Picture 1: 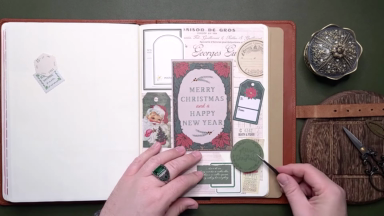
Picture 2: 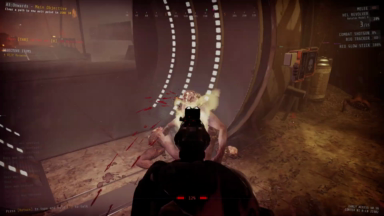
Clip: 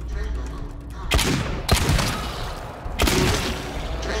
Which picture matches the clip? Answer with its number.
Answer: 2